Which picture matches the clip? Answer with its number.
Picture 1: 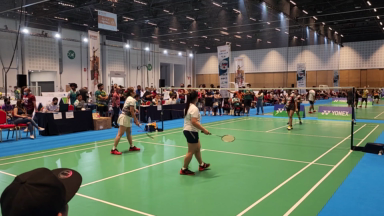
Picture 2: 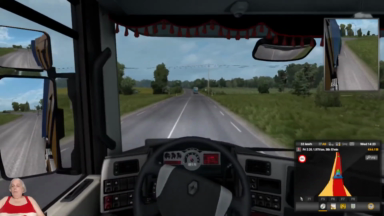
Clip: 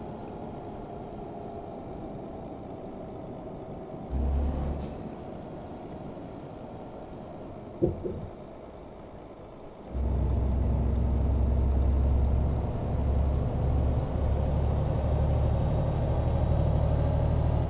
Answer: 2